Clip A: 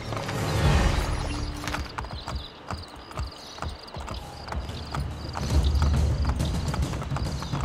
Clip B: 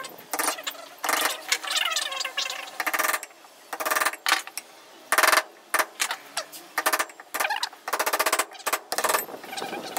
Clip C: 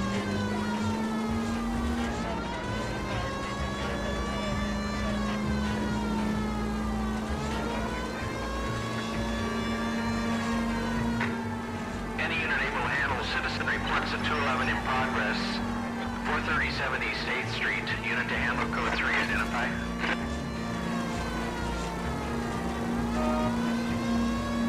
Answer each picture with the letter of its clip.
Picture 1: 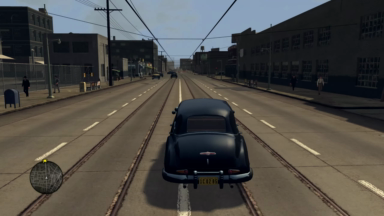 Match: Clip C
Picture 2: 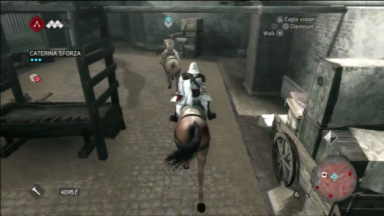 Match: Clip A